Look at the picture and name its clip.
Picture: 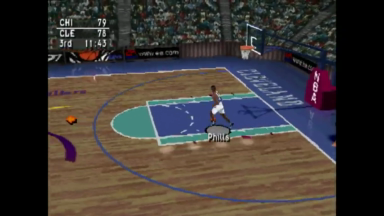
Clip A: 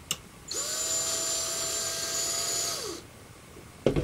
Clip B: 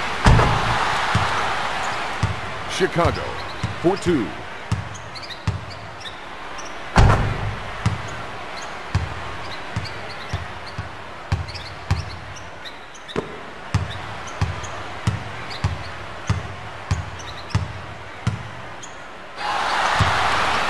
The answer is B